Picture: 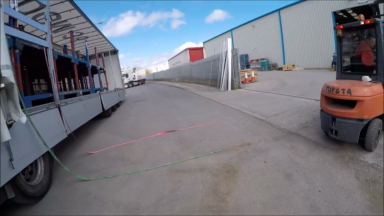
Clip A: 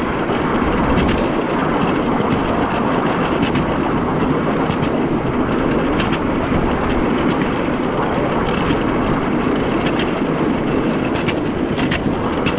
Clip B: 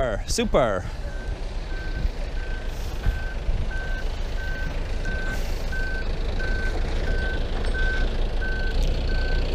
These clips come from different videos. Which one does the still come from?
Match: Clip B